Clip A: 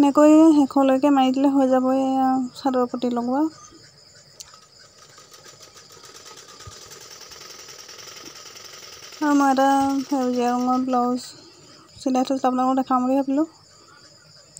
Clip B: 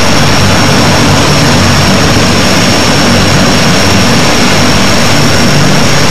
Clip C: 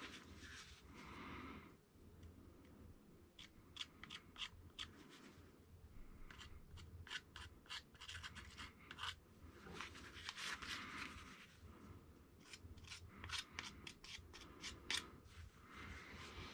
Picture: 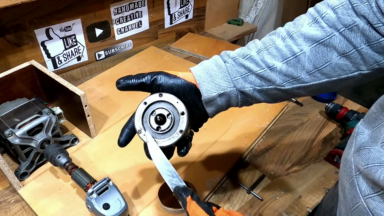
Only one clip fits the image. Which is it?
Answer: C